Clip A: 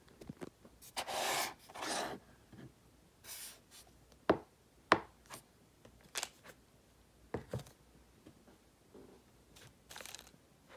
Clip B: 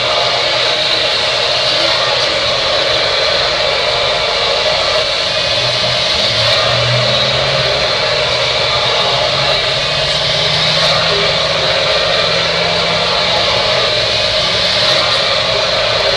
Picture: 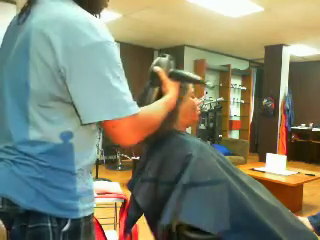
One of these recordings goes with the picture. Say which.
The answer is B